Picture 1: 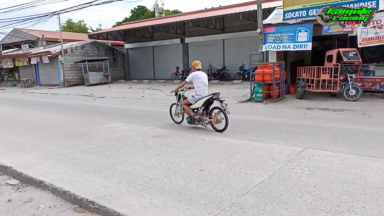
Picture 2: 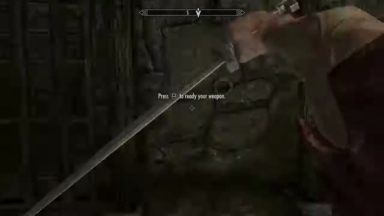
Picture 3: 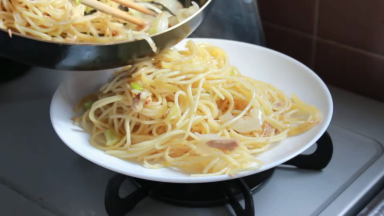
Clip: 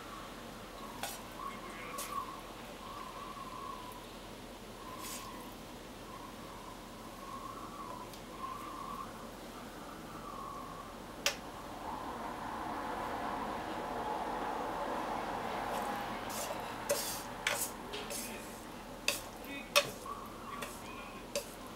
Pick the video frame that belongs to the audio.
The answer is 3